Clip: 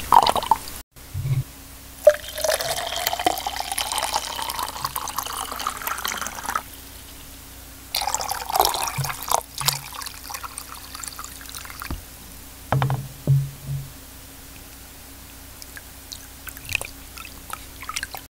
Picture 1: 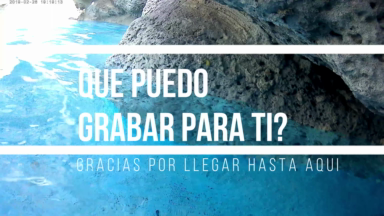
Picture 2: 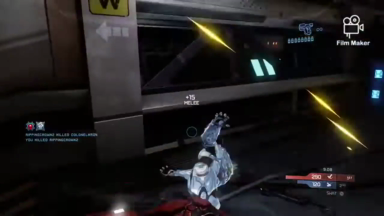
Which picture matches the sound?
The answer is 1